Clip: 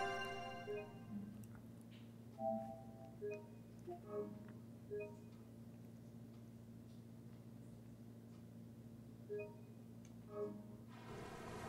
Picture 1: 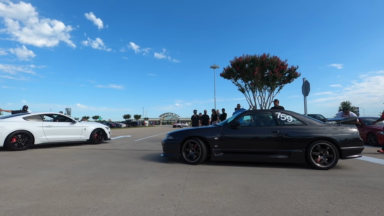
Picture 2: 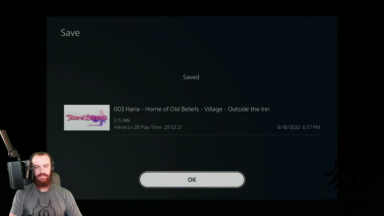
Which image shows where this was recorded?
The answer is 2